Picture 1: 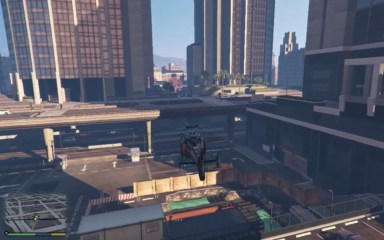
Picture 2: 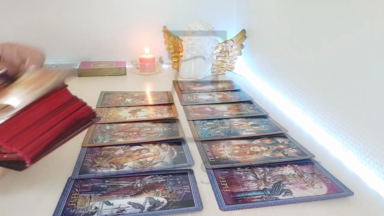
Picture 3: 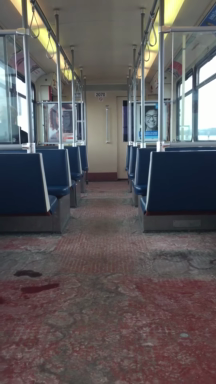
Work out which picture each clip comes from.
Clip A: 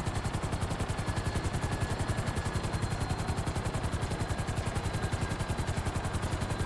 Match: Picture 1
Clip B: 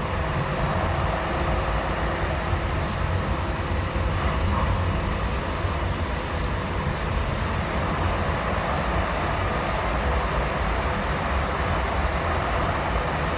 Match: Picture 3